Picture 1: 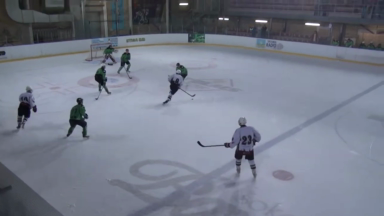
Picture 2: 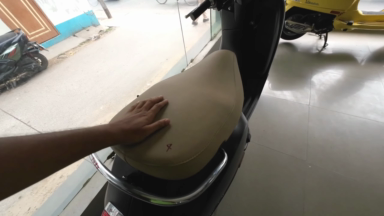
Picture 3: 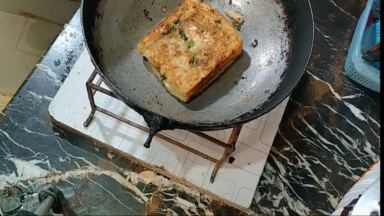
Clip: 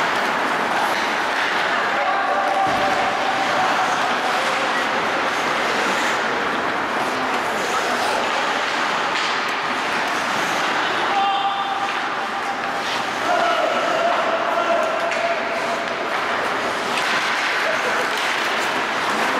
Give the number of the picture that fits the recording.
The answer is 1